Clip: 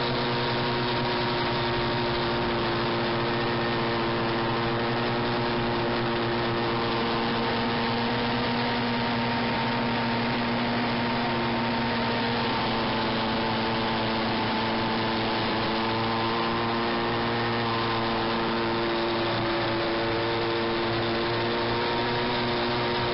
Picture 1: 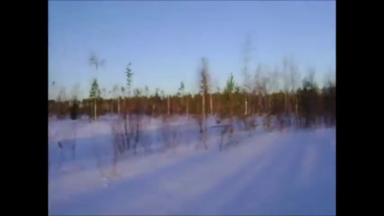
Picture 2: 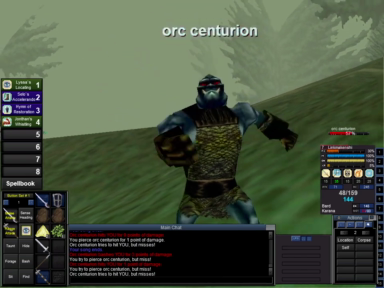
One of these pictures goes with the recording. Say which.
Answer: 1